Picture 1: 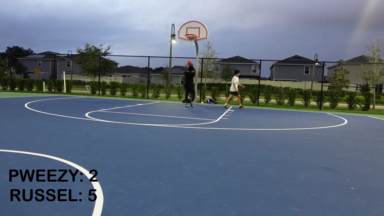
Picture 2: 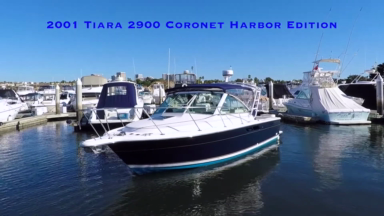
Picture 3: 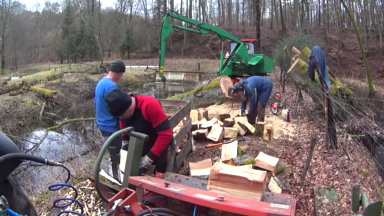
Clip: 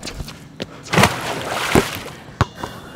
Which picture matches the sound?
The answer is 1